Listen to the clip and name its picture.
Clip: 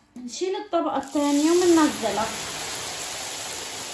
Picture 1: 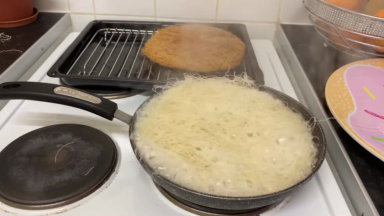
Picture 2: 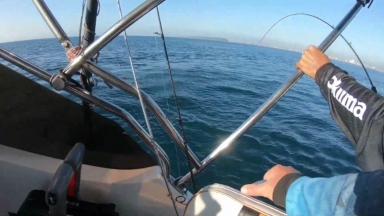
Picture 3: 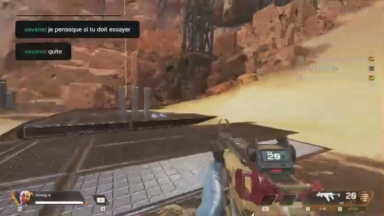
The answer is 1